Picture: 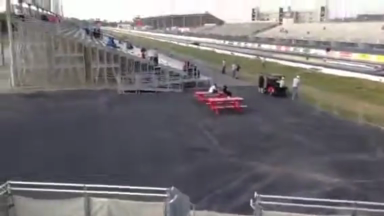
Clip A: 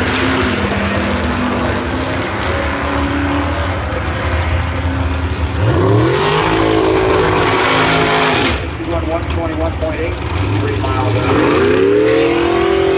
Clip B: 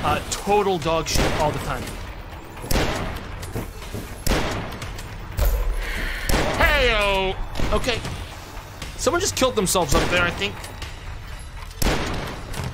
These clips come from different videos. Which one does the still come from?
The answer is A